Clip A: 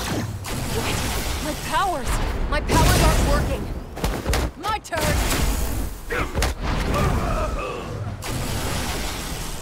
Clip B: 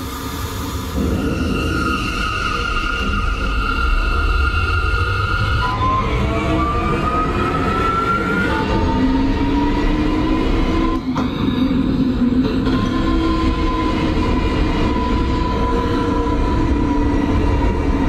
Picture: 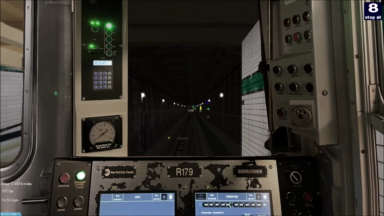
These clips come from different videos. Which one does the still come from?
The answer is B